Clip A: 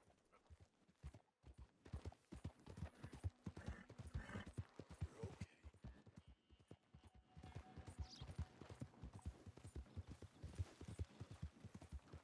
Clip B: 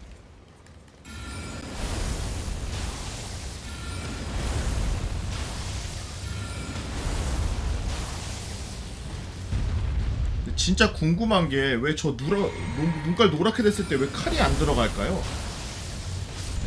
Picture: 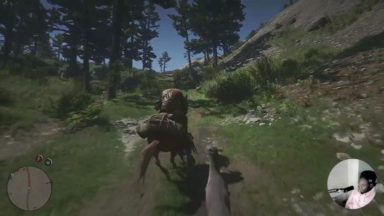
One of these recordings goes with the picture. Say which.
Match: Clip A